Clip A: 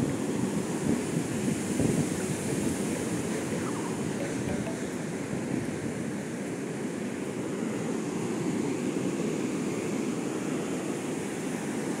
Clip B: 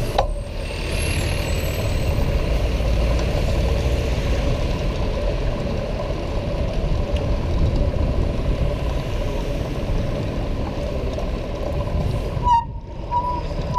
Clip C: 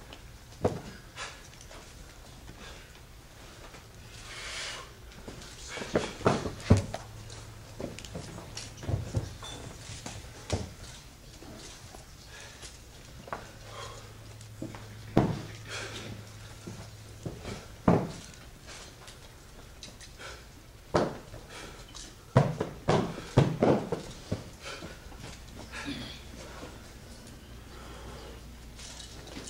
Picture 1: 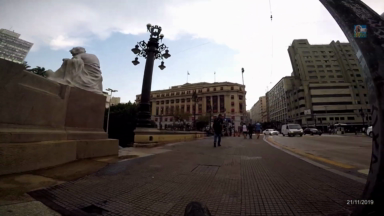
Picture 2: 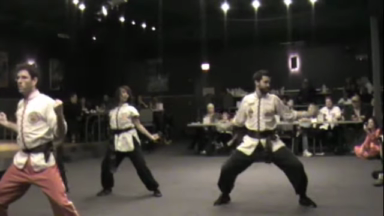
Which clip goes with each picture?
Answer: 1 B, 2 C